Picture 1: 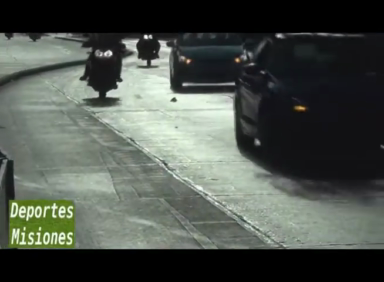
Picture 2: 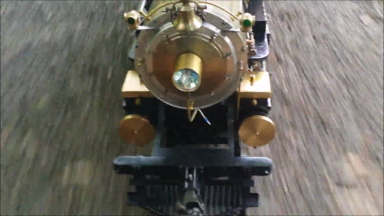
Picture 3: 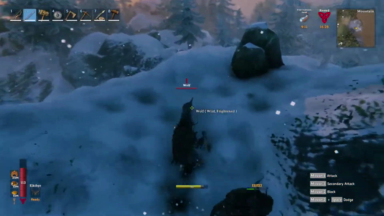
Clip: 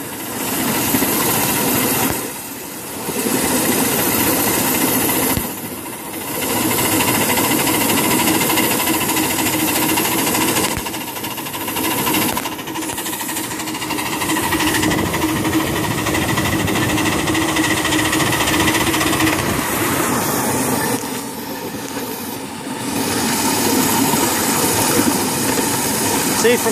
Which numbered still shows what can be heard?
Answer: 2